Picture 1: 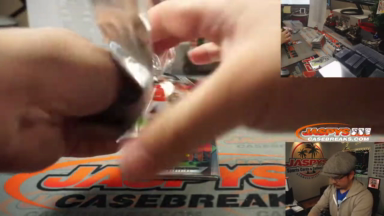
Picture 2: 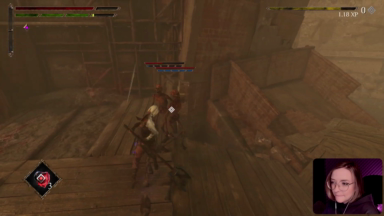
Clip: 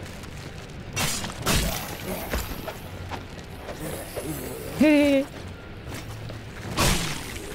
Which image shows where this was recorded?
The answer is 2